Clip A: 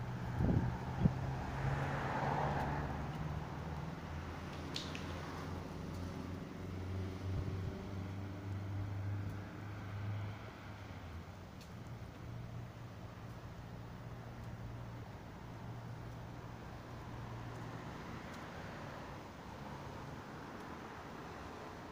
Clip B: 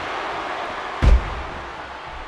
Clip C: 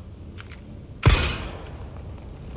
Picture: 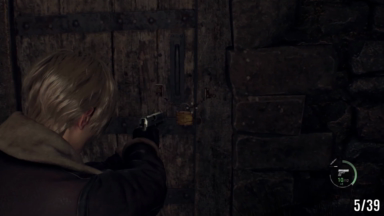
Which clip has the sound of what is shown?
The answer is C